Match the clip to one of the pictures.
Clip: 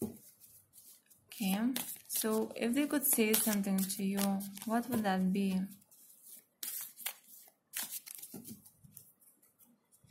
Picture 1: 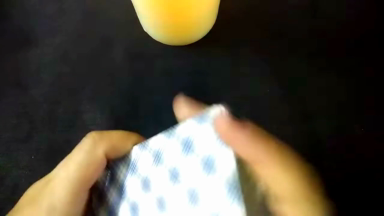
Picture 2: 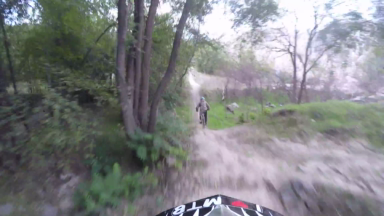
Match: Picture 1